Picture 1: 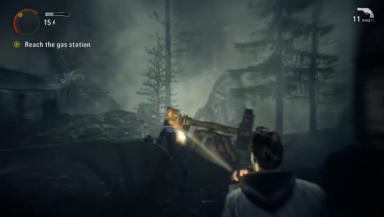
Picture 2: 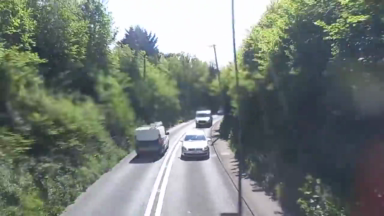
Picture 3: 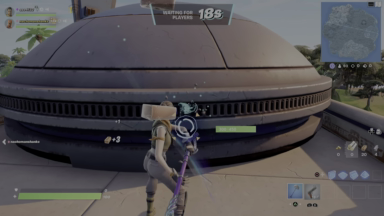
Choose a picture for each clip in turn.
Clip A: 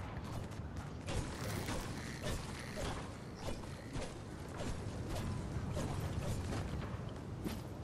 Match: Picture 3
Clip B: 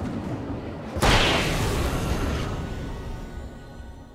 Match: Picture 1